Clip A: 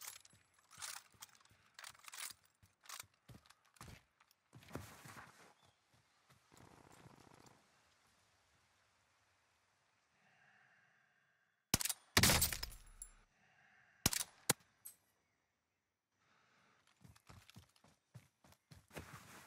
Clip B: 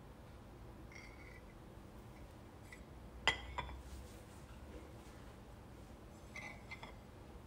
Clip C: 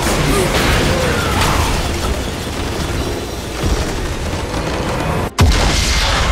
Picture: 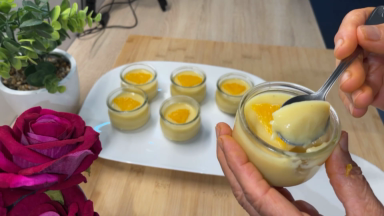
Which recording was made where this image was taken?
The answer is B